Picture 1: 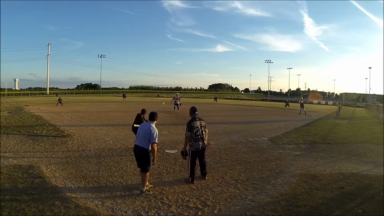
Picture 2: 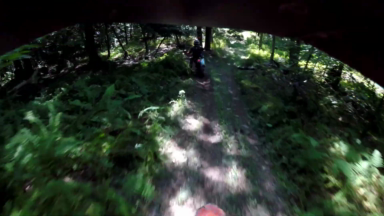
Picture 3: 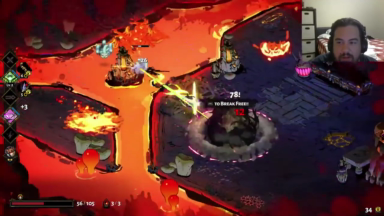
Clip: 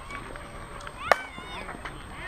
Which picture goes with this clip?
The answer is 1